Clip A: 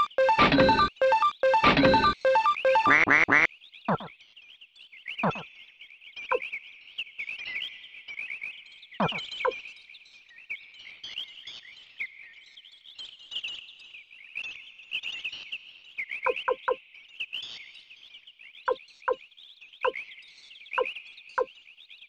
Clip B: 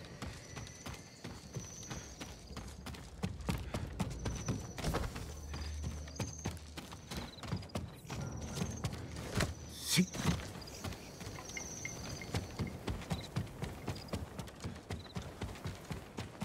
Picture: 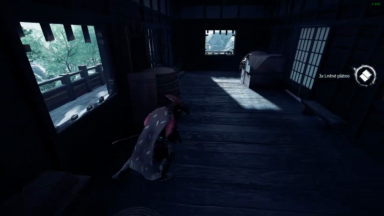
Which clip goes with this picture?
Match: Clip B